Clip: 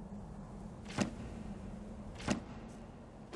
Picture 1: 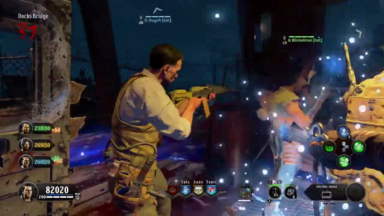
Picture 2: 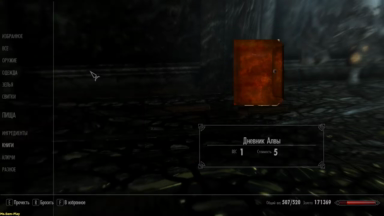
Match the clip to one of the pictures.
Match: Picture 2